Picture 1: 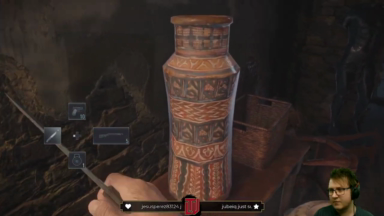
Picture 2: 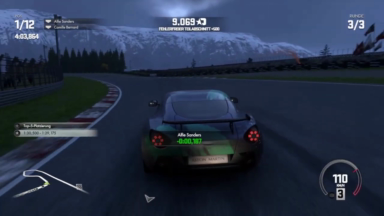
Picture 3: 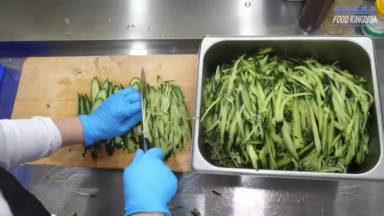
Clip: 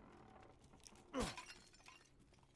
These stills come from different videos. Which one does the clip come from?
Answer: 1